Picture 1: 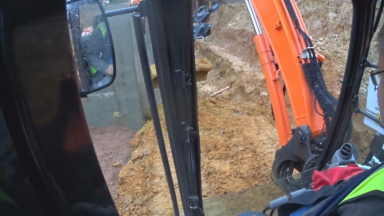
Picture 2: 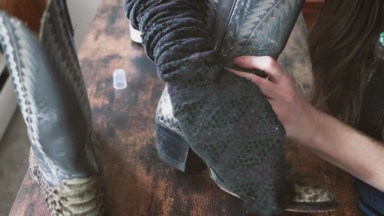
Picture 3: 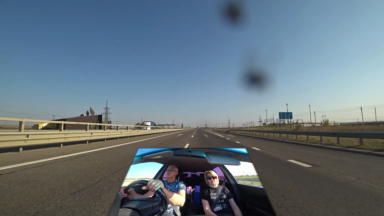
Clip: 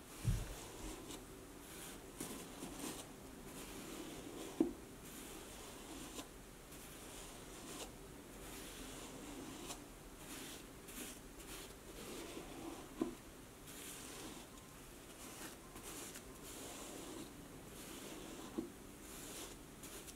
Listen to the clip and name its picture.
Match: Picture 2